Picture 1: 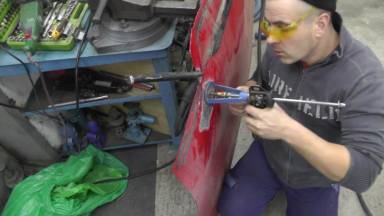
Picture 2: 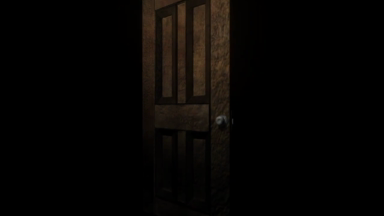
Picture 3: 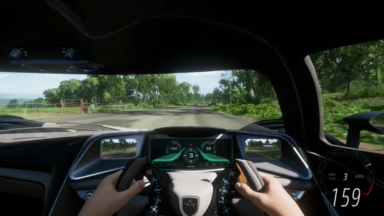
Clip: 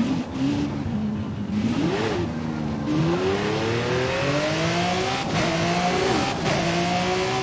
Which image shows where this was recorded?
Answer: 3